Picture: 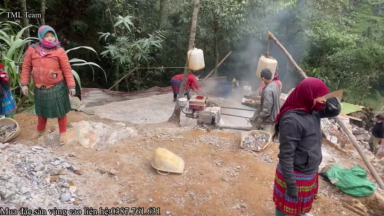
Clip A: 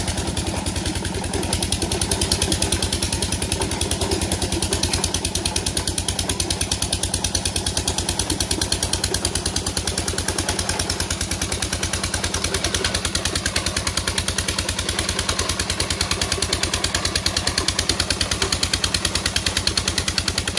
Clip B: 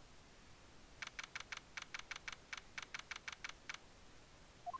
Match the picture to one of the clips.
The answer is A